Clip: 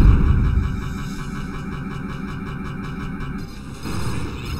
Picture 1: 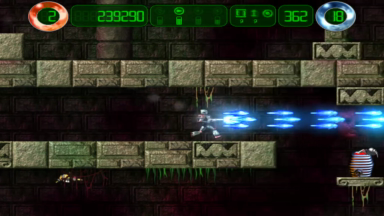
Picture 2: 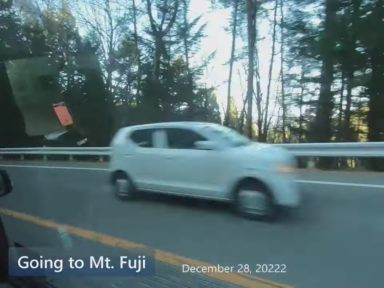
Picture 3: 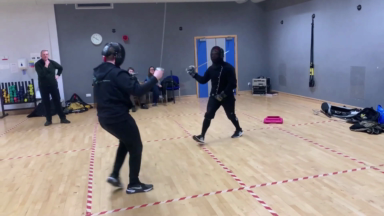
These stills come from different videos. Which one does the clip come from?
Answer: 1